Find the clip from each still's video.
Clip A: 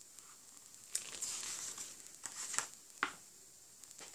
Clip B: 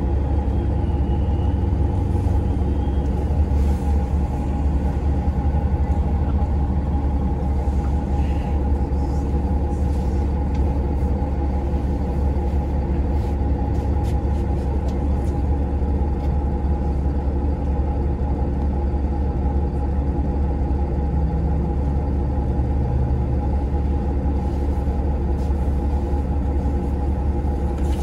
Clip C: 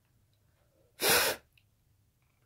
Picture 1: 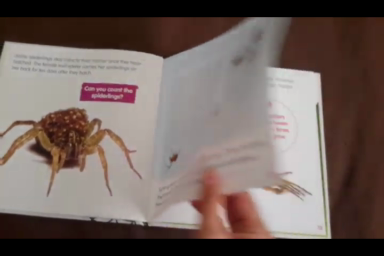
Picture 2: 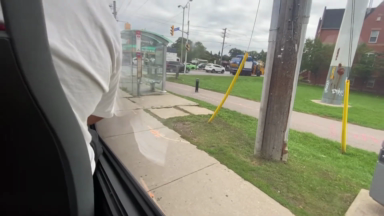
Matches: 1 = A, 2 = B